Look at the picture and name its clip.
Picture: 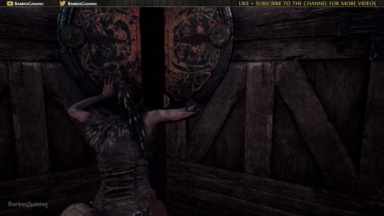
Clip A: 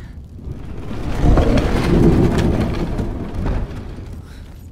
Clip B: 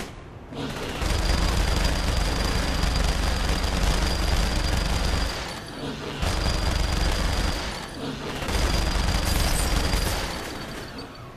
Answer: A